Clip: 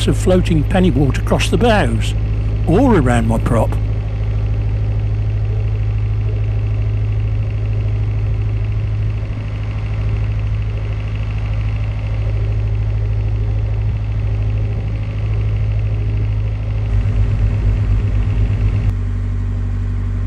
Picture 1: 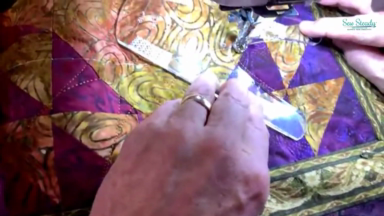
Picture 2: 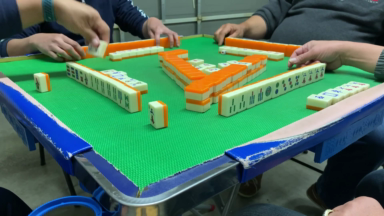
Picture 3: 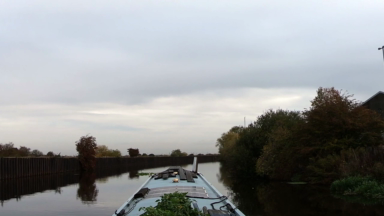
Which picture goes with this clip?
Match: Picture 3